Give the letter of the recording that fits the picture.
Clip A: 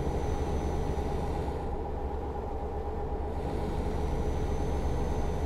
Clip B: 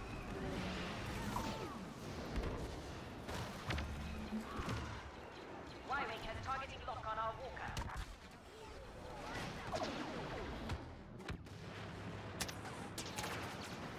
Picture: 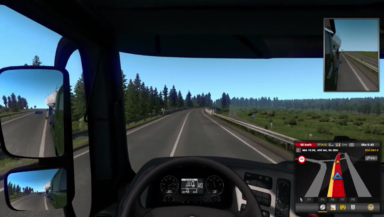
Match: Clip A